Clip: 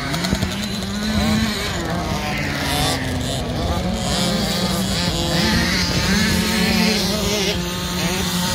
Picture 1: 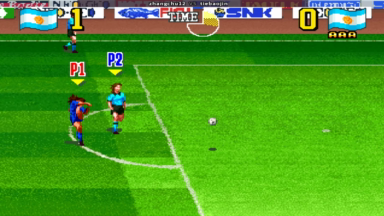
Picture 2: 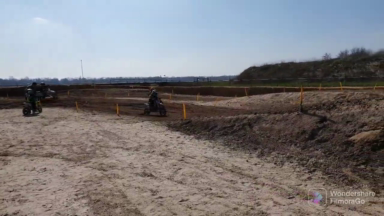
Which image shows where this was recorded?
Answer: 2